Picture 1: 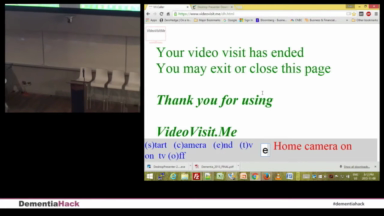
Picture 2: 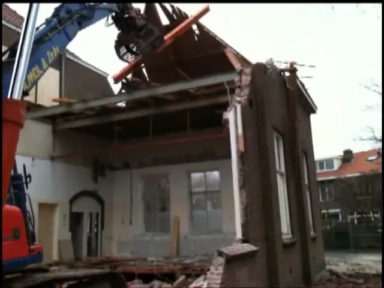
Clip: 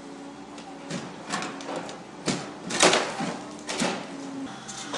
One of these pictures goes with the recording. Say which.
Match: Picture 2